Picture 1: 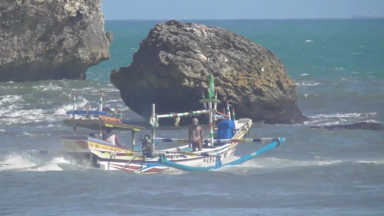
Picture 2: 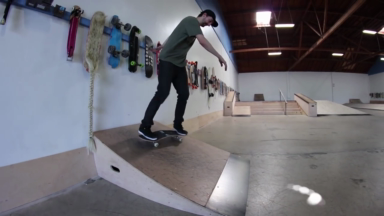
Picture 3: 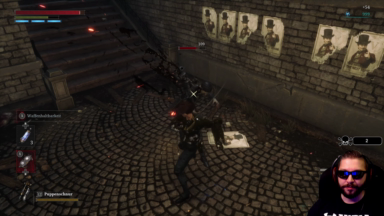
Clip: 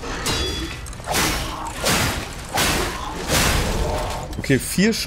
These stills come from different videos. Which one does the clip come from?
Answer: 3